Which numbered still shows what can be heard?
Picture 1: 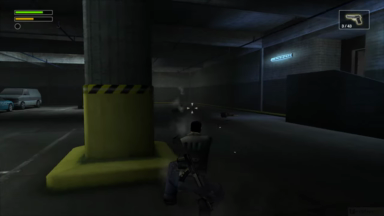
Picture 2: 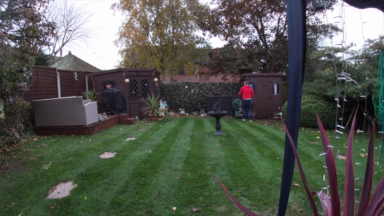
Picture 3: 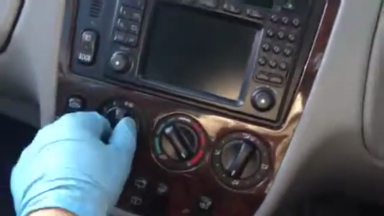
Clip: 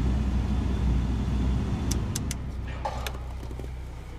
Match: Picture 3